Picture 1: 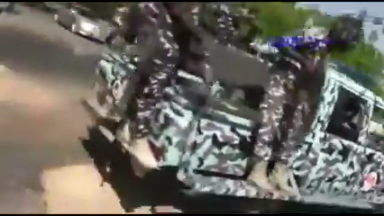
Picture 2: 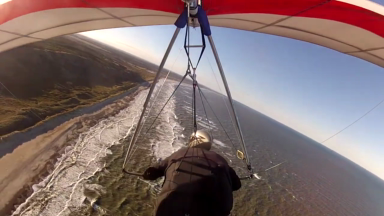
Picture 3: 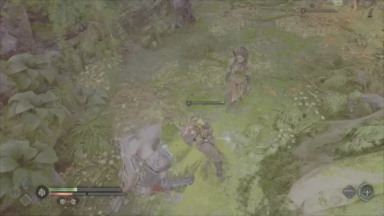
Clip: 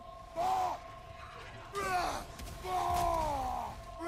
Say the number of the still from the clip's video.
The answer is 3